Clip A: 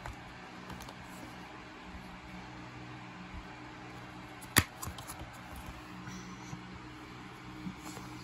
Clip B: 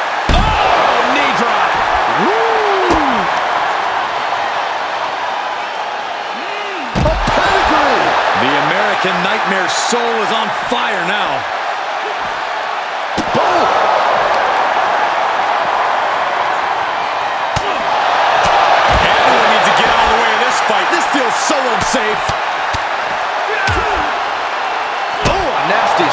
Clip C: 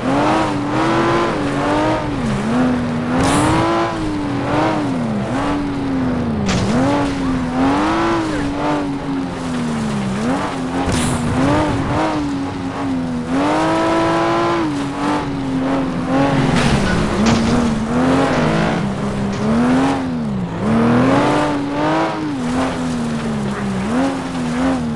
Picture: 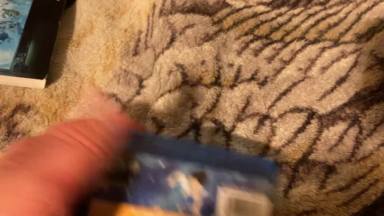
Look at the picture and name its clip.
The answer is A